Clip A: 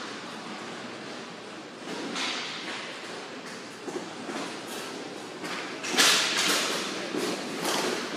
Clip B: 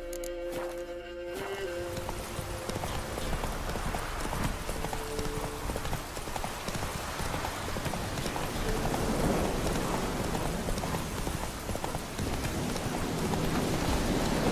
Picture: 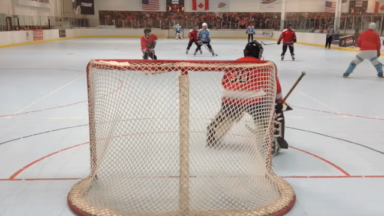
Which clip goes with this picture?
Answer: A